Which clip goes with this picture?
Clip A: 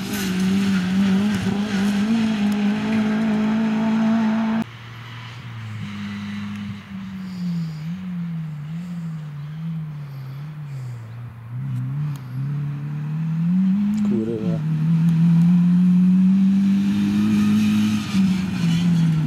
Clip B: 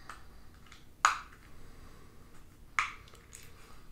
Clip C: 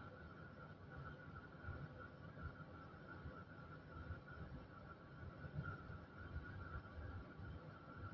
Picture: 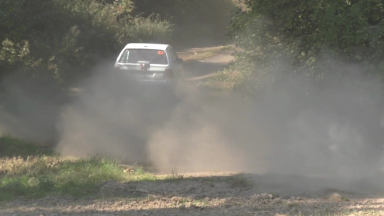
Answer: A